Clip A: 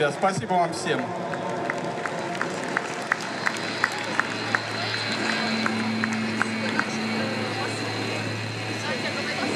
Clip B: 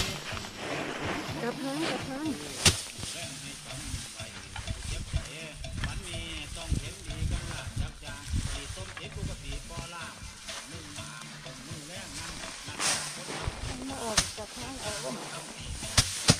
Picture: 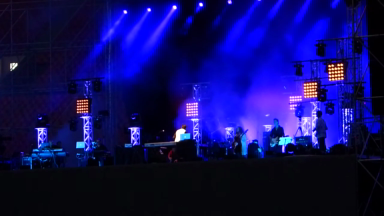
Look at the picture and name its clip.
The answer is A